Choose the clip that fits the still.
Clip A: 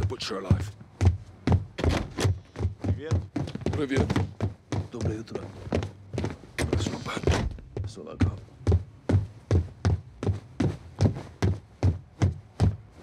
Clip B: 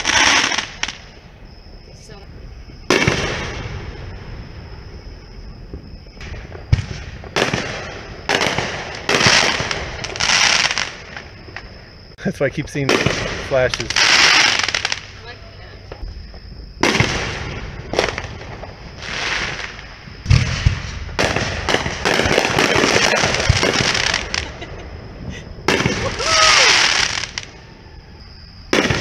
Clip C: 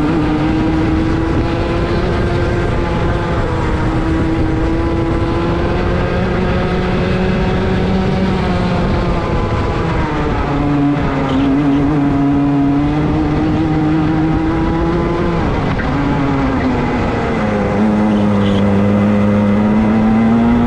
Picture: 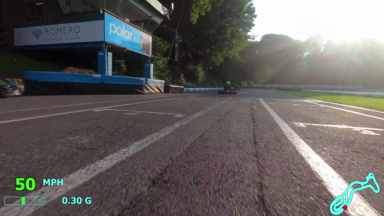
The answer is C